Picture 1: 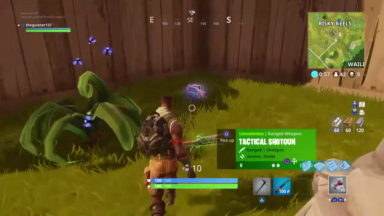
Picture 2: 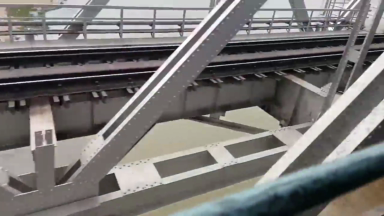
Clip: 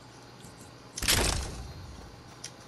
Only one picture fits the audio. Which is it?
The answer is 1